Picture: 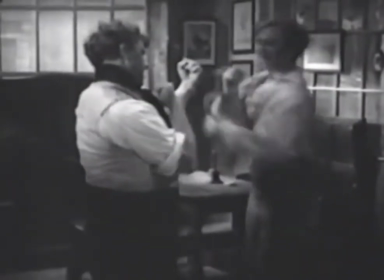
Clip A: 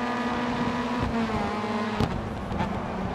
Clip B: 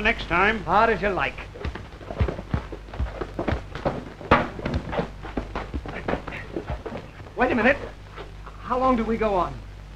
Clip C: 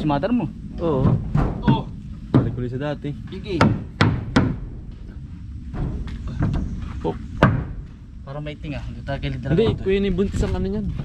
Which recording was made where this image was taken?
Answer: B